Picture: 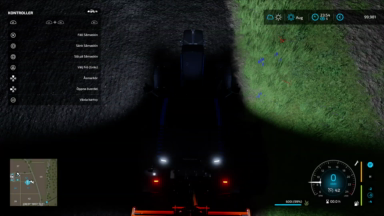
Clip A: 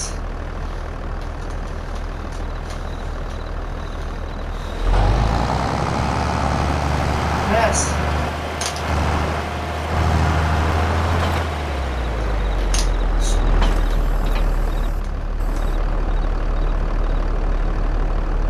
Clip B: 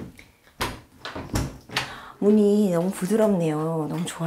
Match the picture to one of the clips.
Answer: A